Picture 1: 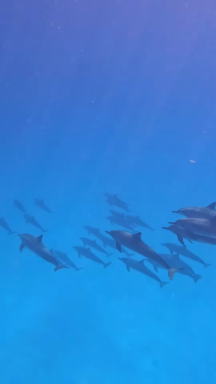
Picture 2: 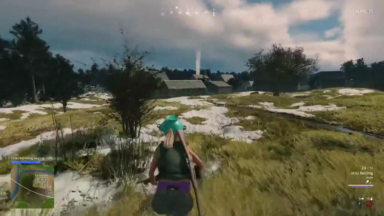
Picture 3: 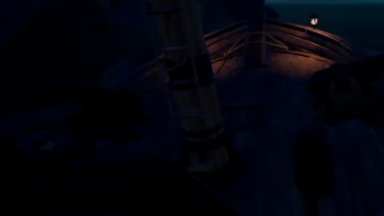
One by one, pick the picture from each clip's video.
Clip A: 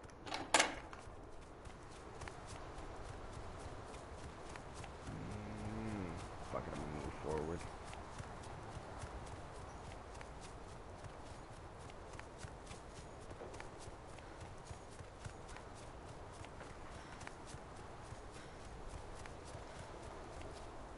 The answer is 2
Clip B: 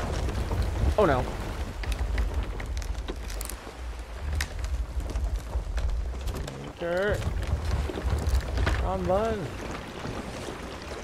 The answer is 3